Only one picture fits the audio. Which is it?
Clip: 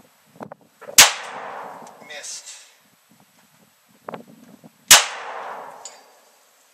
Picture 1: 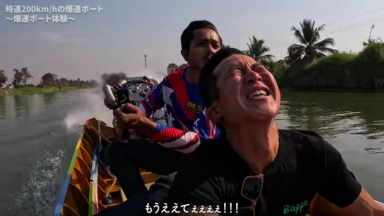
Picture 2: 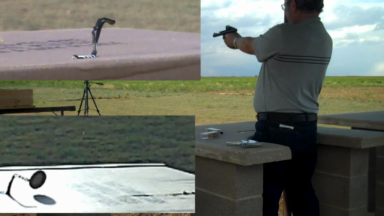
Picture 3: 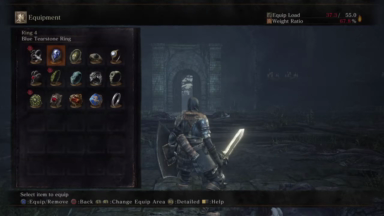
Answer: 2